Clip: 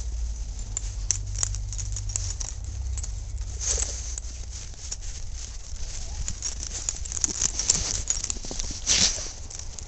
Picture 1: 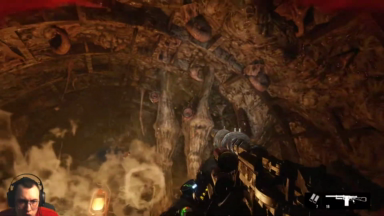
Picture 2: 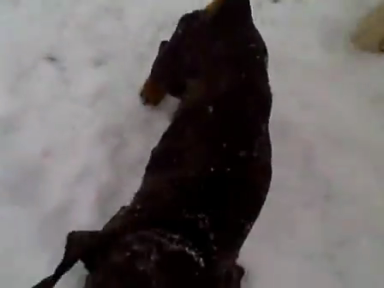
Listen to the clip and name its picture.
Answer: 2